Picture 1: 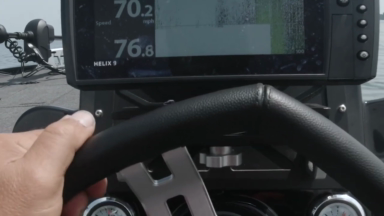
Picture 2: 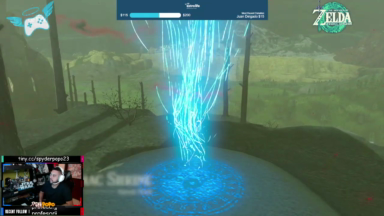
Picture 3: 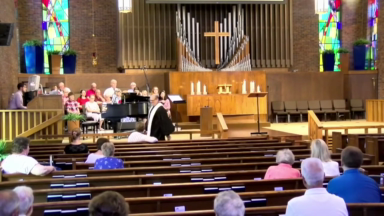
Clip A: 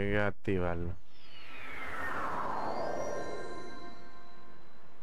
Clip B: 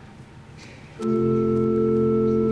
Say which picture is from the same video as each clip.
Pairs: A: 2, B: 3